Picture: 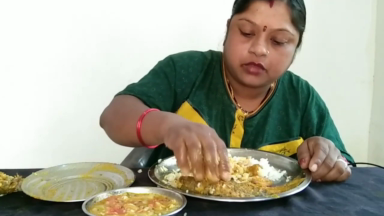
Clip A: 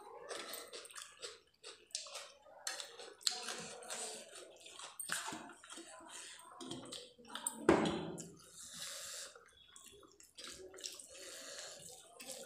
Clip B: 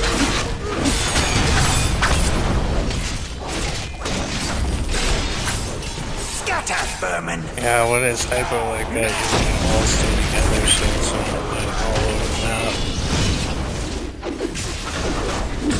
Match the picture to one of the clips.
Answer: A